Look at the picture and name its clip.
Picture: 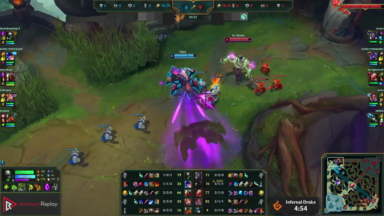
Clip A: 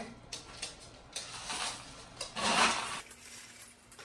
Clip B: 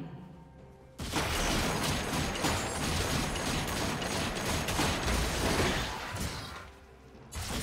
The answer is B